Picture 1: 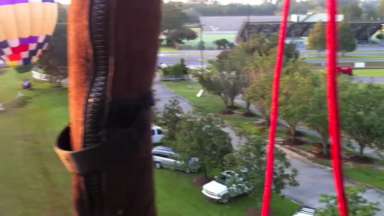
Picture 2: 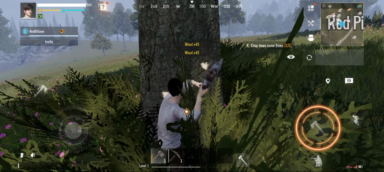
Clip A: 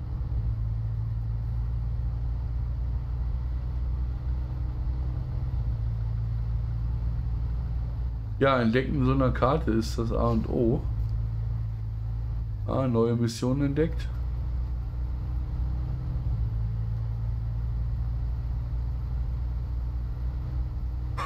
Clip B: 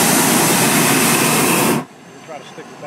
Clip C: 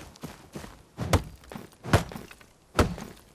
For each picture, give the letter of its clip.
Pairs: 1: B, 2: C